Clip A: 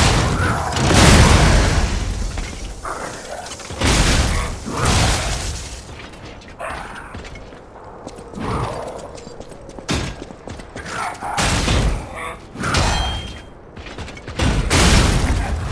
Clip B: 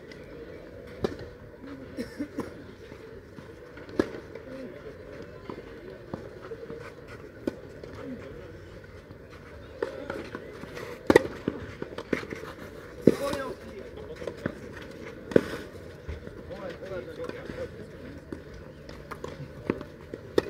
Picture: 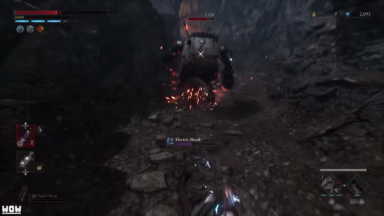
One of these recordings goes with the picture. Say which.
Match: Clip A